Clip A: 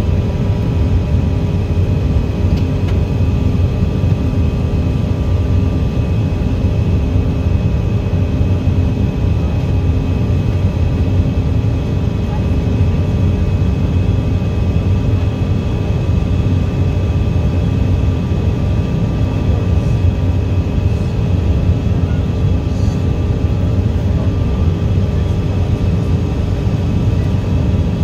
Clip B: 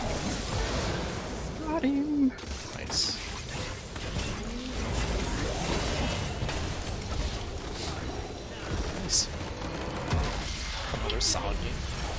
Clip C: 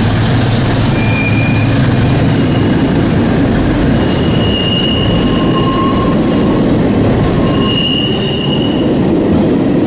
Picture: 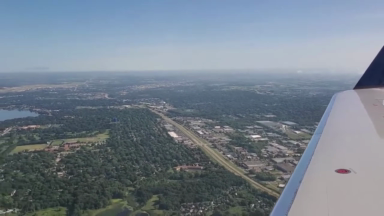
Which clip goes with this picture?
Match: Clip A